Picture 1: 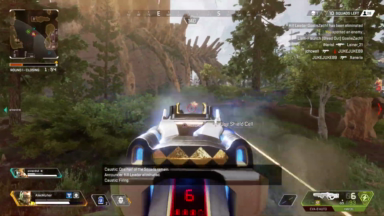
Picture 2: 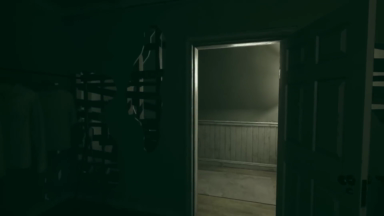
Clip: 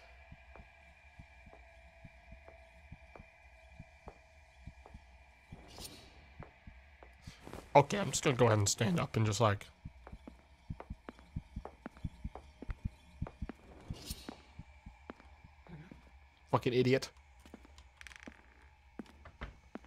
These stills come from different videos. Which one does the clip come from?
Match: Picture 2